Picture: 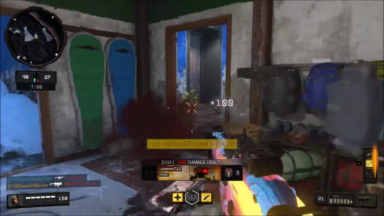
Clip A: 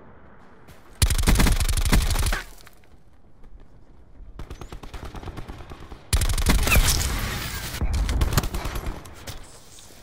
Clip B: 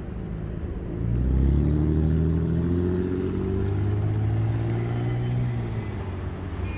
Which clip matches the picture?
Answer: A